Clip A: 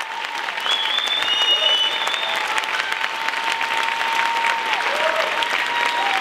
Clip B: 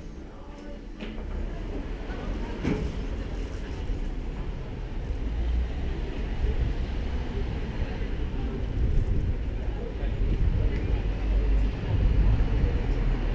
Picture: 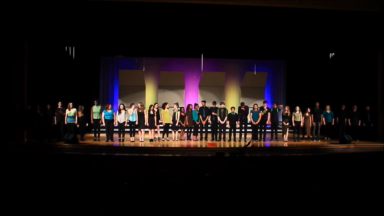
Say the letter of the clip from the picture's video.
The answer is A